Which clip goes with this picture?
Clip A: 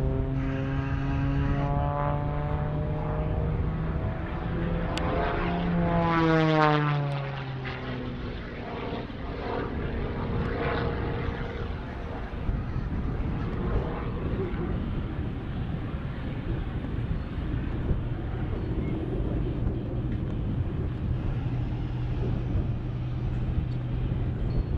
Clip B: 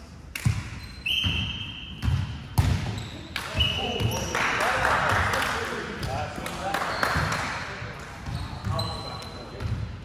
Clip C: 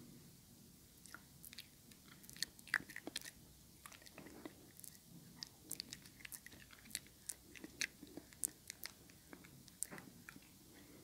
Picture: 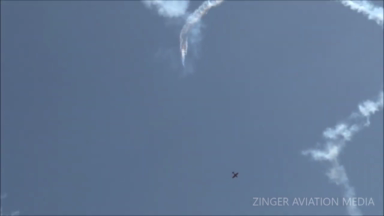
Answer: A